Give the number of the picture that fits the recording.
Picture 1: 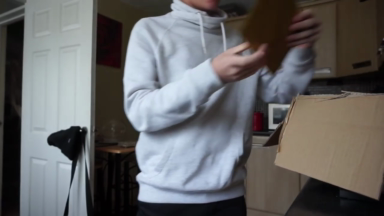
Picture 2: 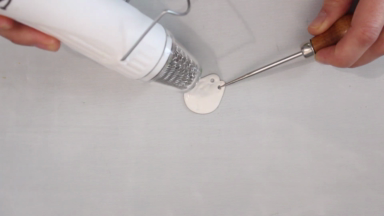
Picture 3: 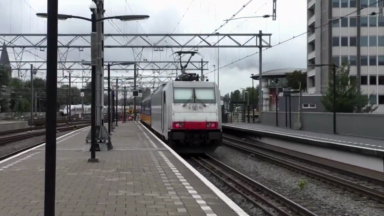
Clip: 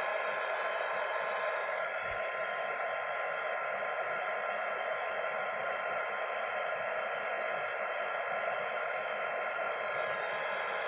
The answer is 2